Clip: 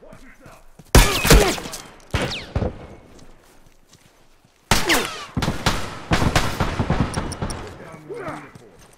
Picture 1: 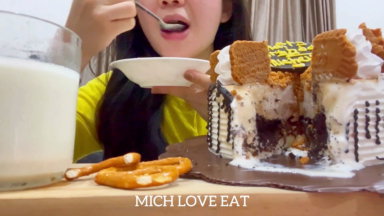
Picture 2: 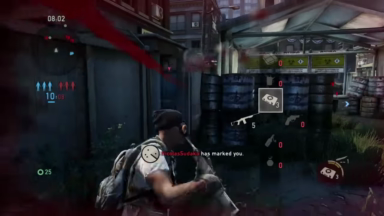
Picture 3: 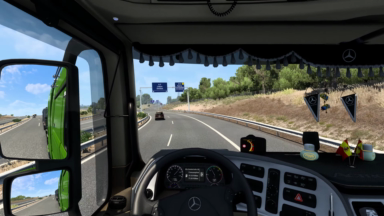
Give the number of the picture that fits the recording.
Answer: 2